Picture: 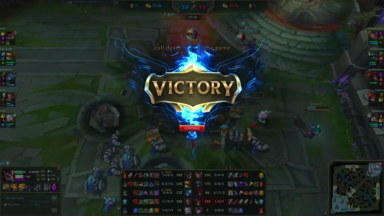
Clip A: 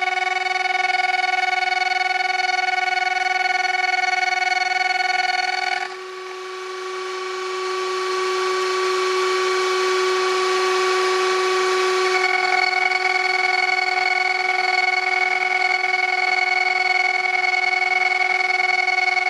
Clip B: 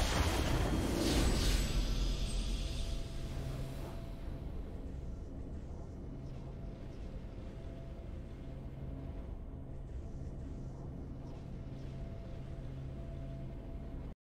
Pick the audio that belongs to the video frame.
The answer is B